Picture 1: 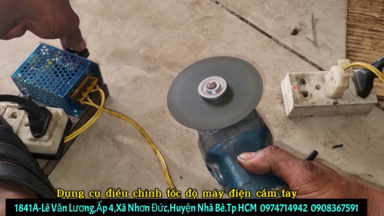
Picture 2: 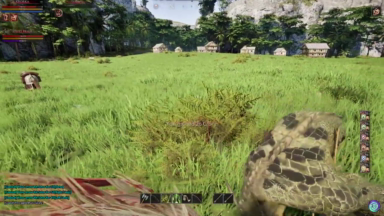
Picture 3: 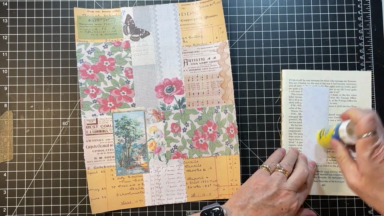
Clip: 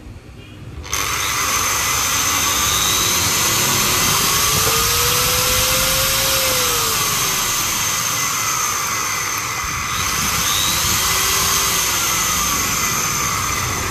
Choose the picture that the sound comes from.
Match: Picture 1